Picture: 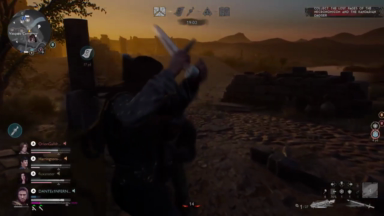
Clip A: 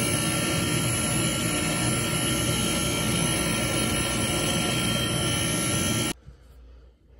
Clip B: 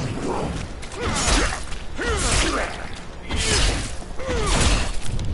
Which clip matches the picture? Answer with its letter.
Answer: B